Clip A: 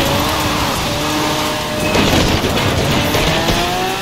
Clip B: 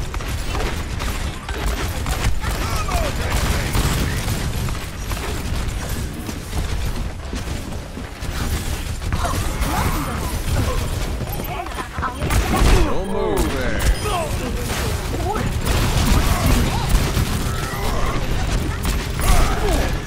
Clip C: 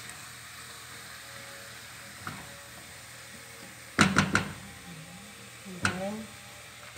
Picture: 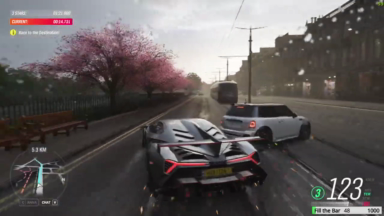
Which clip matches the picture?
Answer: A